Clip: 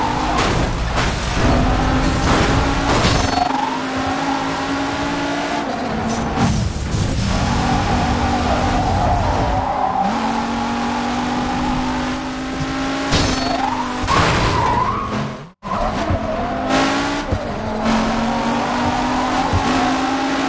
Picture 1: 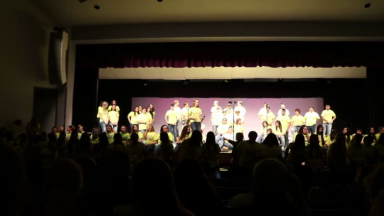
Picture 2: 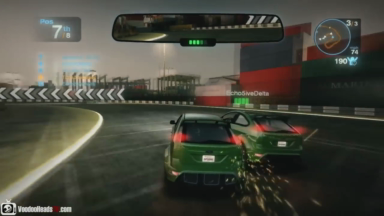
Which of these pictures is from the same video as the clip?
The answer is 2